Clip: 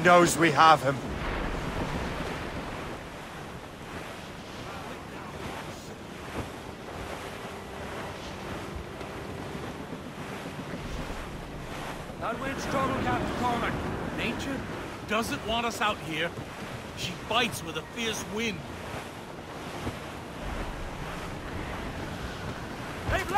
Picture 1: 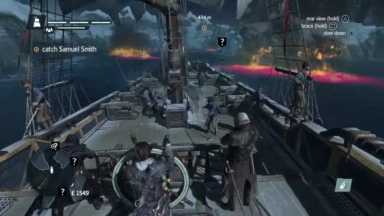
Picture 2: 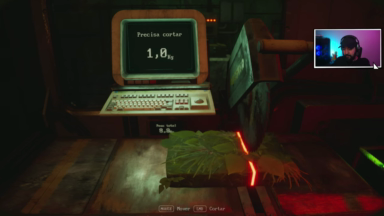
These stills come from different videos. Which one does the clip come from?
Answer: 1